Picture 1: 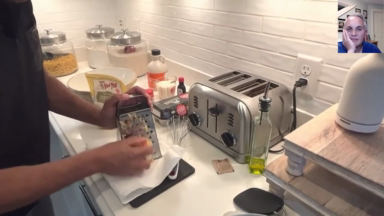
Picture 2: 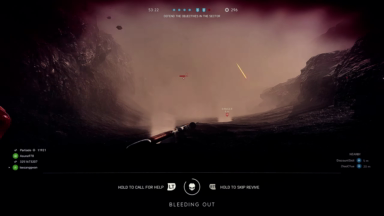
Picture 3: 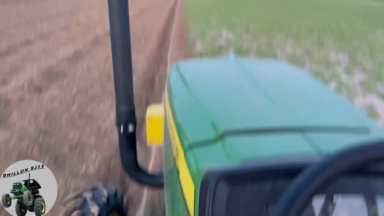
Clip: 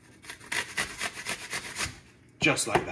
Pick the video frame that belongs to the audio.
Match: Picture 1